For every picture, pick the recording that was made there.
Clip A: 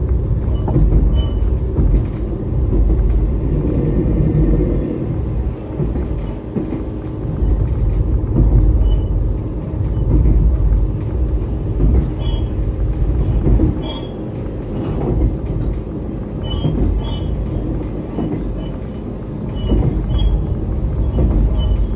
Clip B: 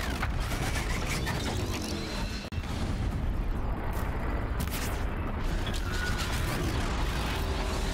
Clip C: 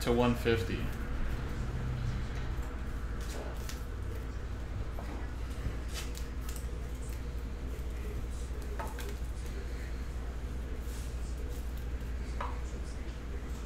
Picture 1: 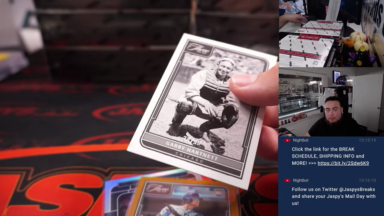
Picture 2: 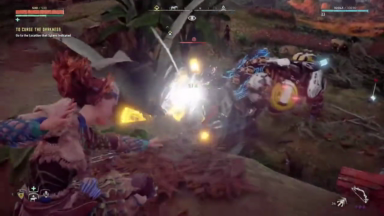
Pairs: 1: C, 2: B